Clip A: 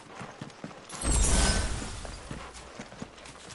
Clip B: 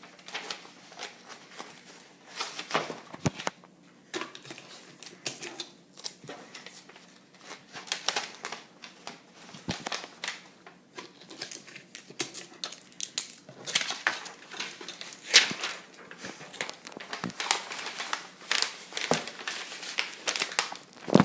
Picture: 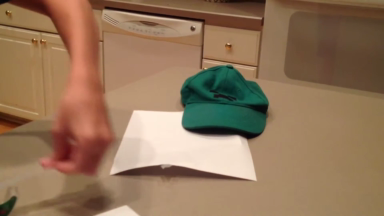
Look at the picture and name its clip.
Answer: B